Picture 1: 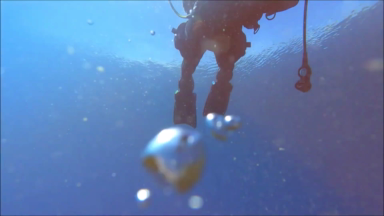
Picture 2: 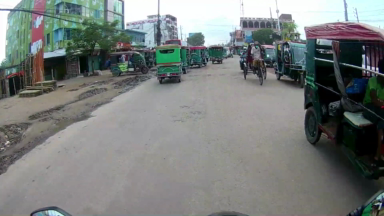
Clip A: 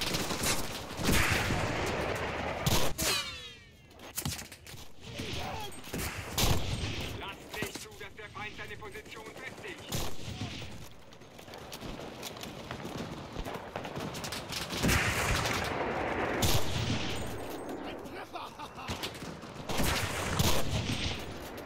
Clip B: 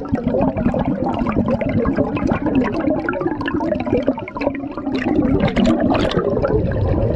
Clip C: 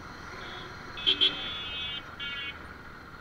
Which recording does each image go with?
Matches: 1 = B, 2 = C